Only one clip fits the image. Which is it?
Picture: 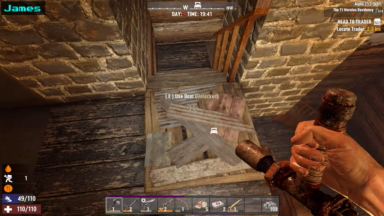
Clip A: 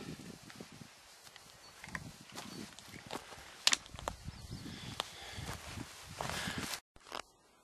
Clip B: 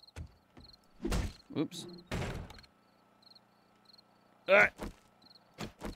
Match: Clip B